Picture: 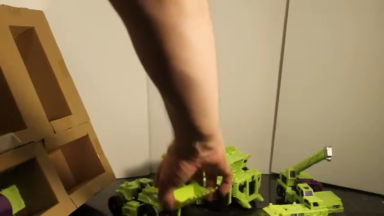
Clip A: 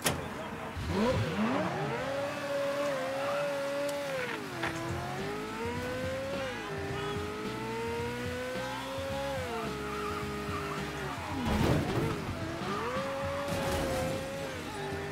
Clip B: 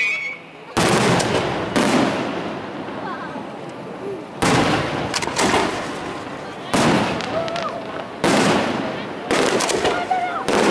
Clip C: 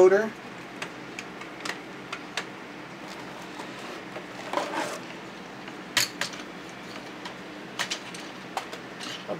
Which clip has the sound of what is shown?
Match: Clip C